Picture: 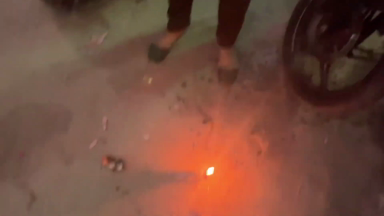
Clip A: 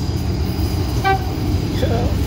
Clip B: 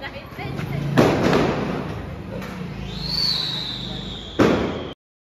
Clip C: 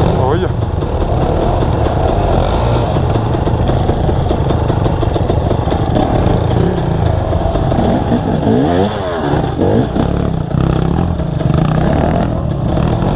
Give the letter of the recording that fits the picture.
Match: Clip B